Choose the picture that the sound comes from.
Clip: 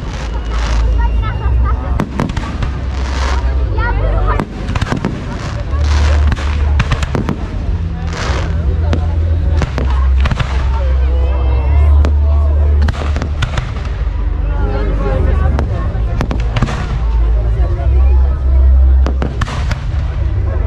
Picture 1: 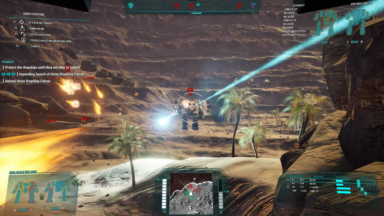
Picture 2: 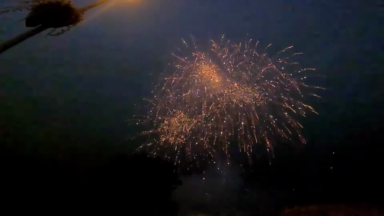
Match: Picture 2